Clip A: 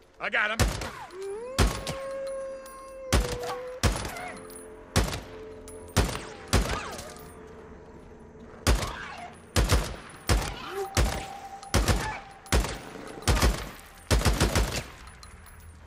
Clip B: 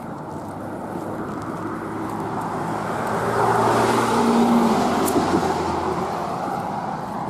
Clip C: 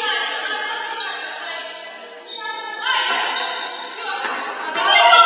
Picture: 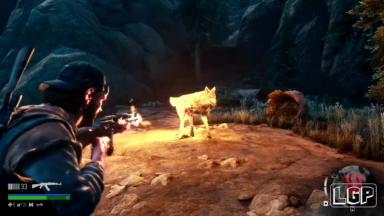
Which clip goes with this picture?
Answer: A